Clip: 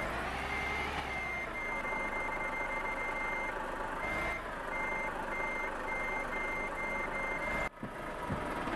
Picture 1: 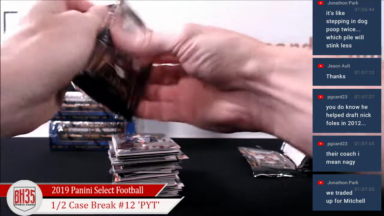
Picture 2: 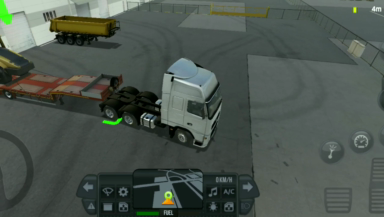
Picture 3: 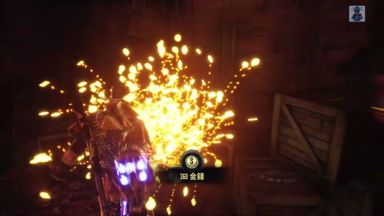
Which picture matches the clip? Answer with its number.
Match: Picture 2